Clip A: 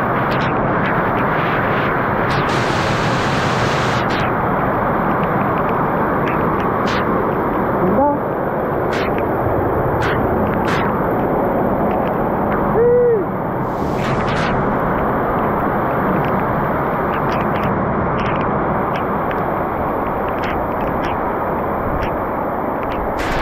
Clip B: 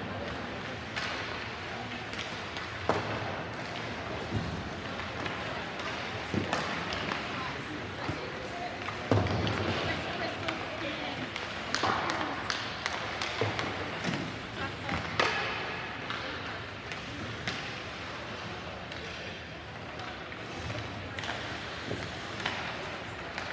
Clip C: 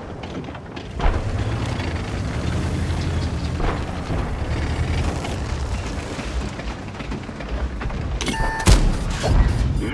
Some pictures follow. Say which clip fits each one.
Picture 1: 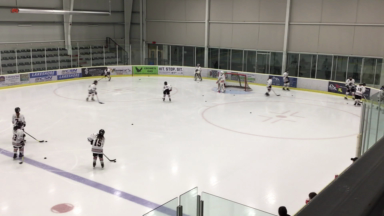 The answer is B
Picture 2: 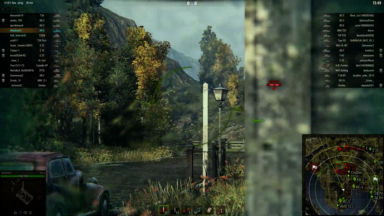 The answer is C